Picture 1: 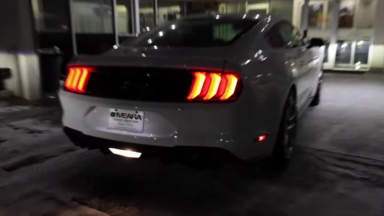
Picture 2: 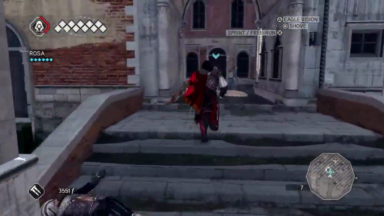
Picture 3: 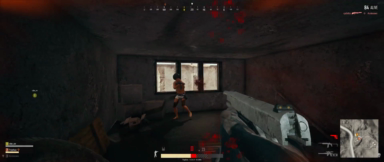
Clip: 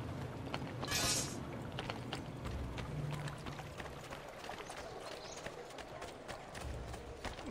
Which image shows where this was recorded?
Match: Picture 2